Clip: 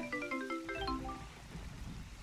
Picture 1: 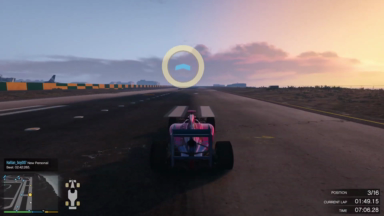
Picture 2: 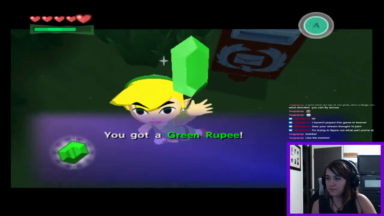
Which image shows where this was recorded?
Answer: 2